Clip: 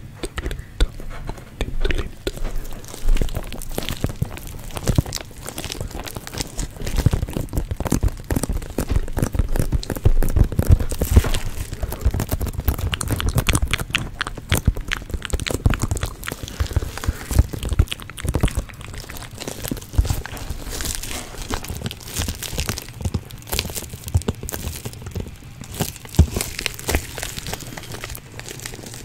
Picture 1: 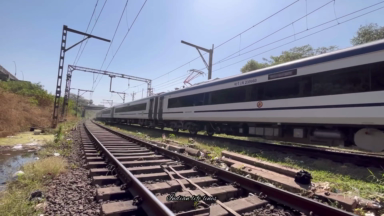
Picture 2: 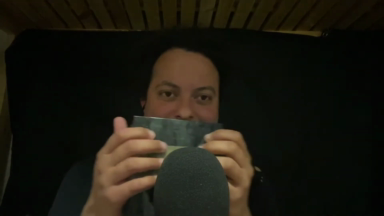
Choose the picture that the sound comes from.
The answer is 2